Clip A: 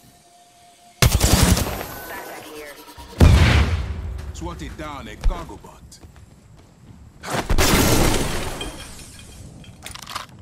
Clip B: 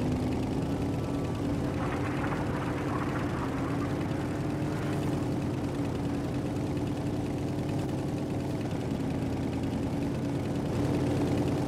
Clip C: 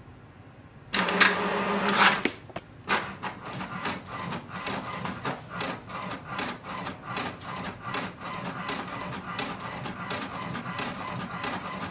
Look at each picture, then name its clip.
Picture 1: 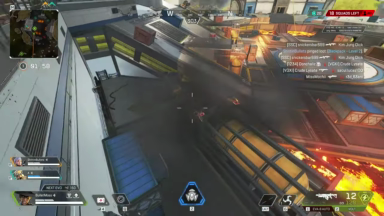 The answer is A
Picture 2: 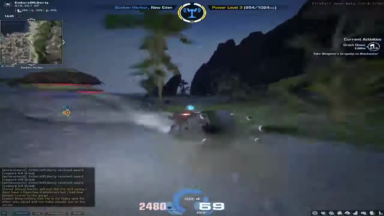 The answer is B